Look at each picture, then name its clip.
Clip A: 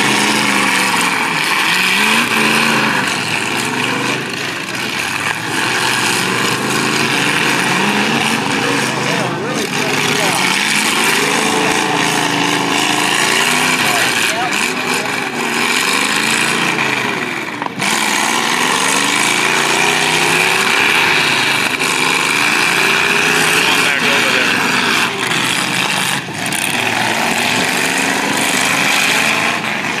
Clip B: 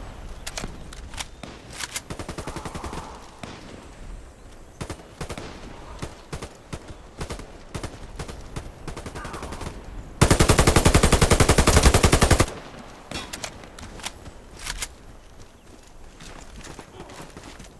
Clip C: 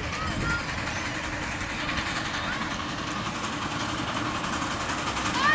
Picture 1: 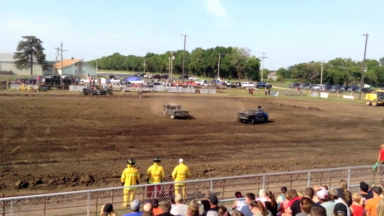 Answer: A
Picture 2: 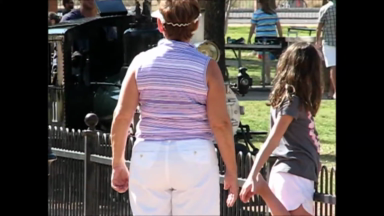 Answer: C